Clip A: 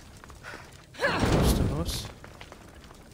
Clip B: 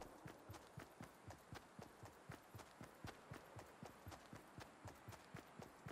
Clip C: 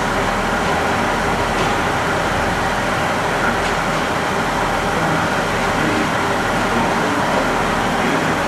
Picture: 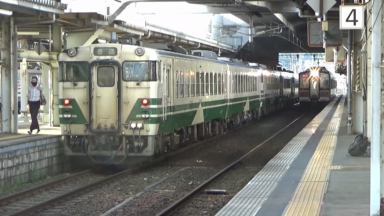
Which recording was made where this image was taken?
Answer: C